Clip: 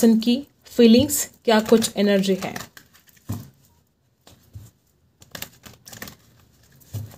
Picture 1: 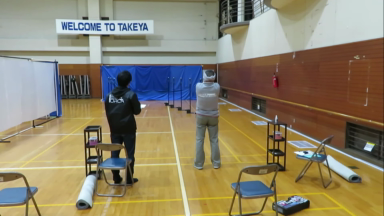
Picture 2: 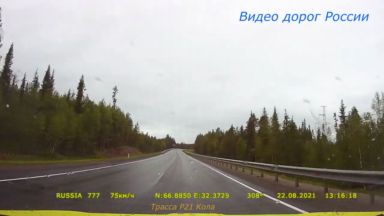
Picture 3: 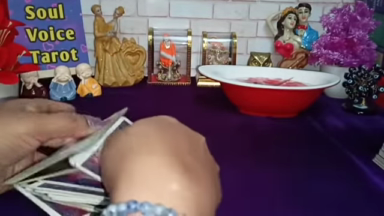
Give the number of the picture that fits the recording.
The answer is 3